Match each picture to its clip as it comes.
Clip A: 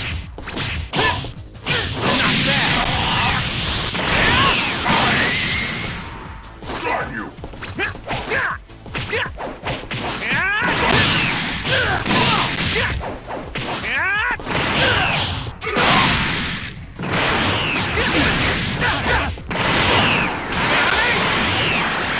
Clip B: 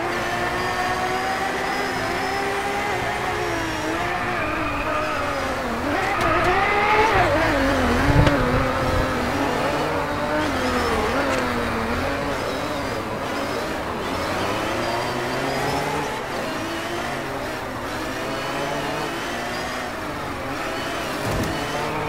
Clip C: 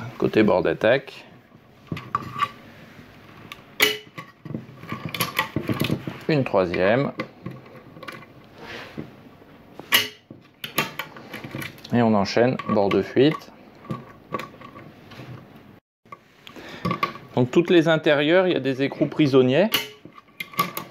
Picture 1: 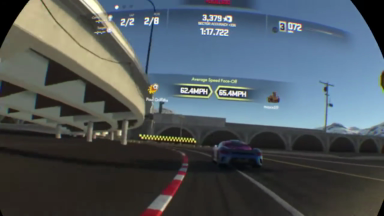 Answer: B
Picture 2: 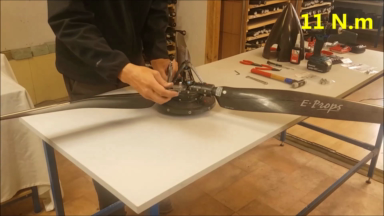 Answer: C